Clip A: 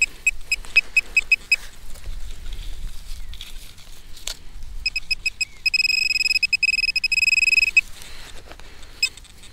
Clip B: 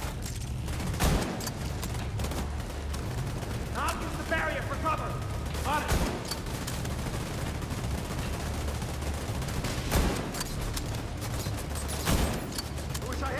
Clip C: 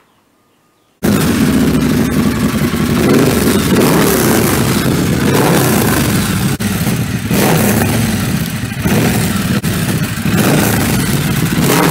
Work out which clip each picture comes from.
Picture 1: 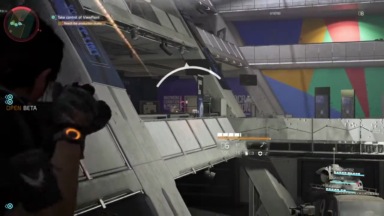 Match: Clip B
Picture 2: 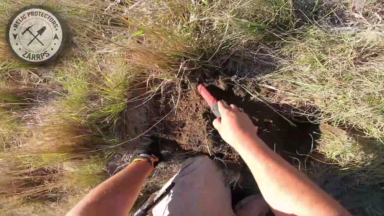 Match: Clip A